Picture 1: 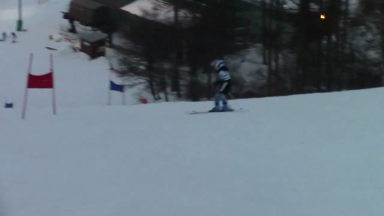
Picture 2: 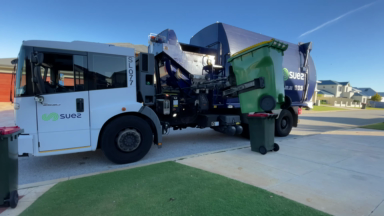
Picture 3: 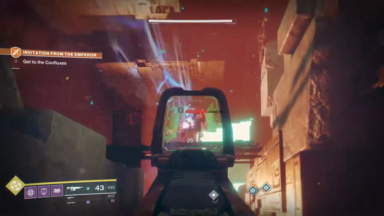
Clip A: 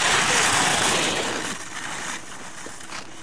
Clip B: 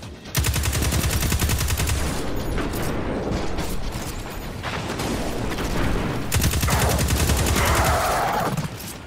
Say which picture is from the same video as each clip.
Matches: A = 1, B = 3